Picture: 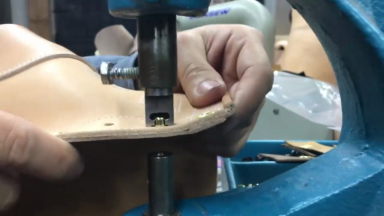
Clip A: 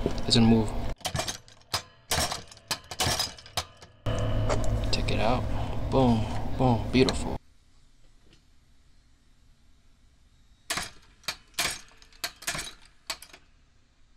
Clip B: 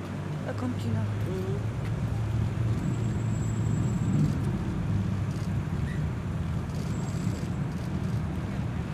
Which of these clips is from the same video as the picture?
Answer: A